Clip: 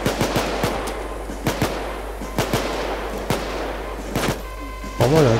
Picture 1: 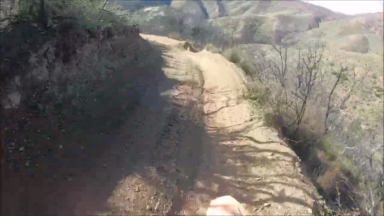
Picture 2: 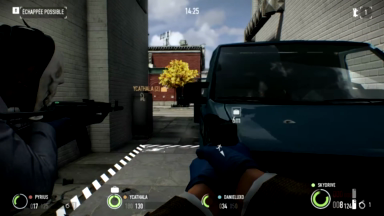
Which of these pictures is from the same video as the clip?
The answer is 2